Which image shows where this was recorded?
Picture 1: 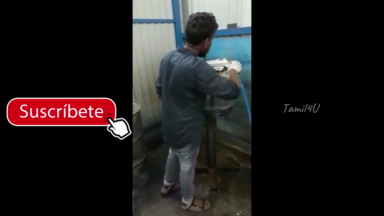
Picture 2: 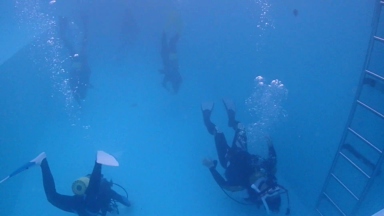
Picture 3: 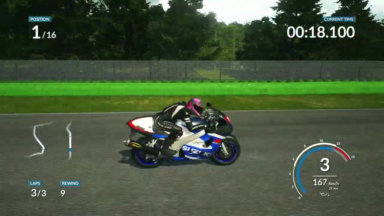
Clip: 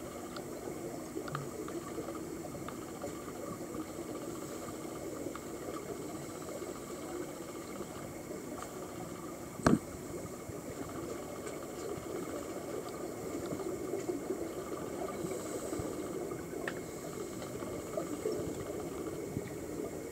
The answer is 2